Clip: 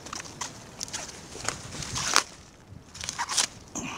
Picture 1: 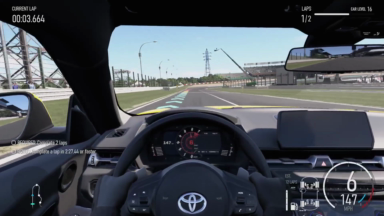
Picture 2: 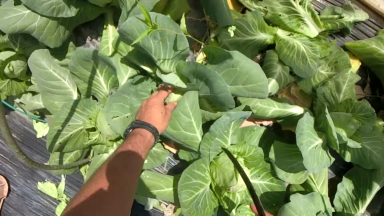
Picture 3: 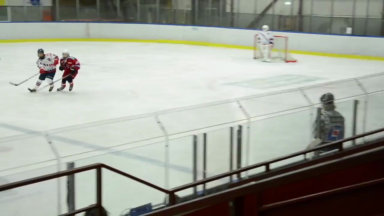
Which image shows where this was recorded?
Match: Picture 2